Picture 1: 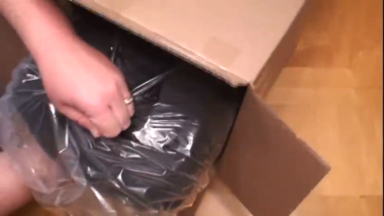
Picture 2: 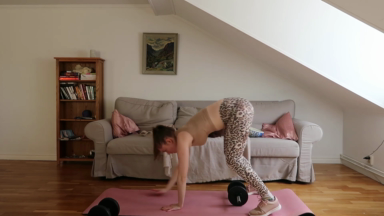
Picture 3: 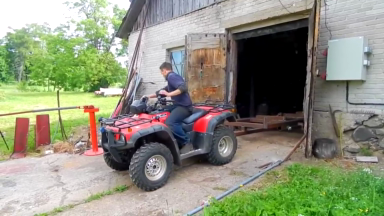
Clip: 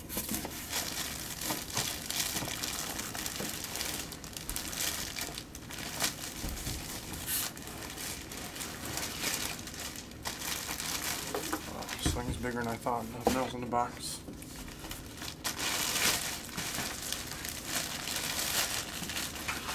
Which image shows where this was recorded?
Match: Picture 1